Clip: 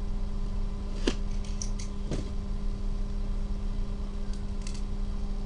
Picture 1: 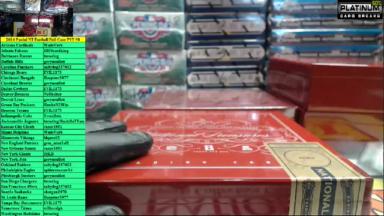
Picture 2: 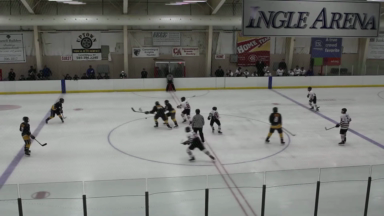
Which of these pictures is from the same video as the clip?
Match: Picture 1